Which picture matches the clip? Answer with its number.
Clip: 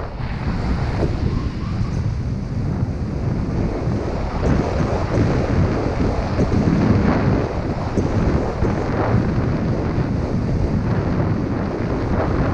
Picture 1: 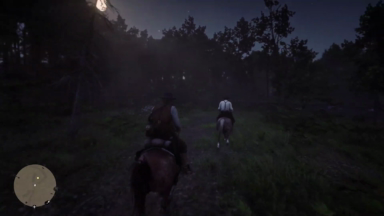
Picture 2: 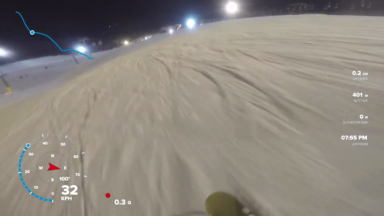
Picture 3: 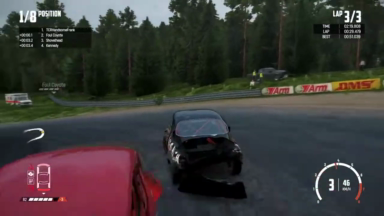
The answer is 2